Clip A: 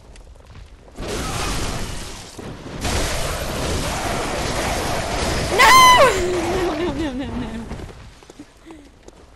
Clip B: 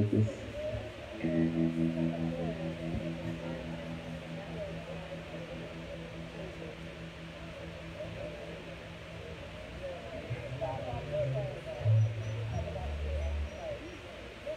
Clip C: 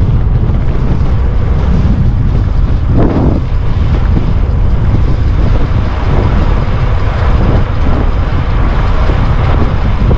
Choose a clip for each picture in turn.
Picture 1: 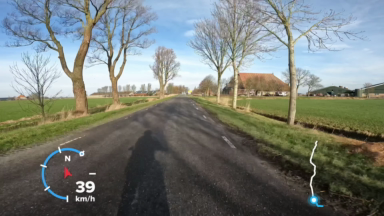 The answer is C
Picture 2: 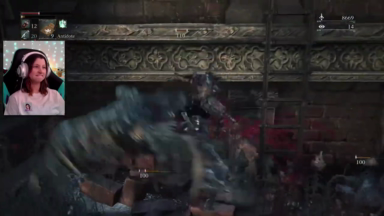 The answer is A